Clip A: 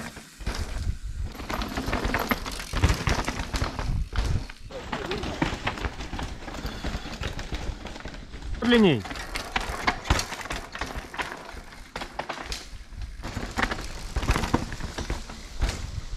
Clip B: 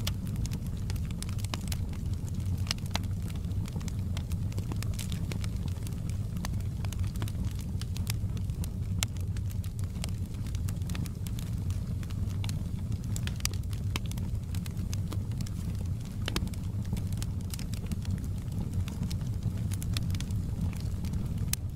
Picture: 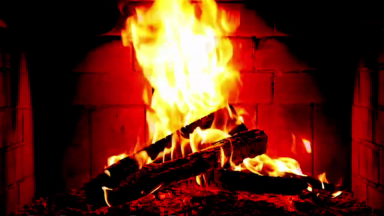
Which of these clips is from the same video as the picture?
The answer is B